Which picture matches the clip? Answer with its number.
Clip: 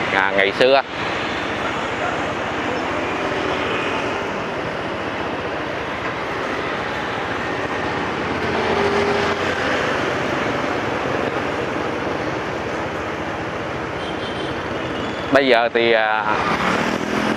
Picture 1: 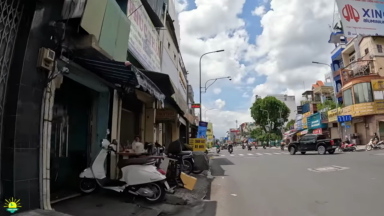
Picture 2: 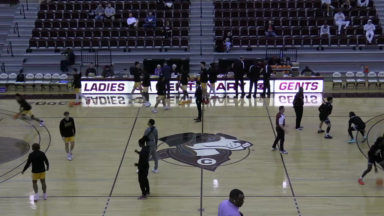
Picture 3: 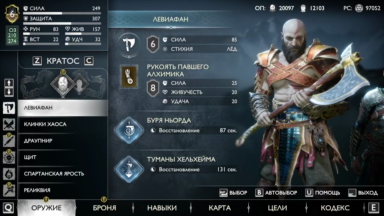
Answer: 1